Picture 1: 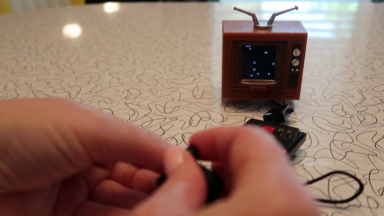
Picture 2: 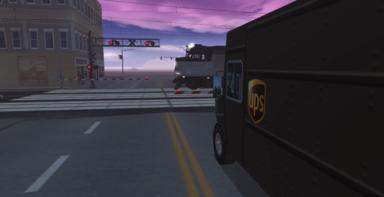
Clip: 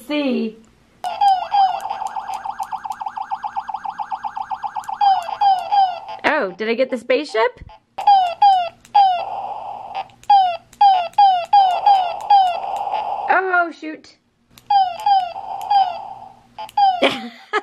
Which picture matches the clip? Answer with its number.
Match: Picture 1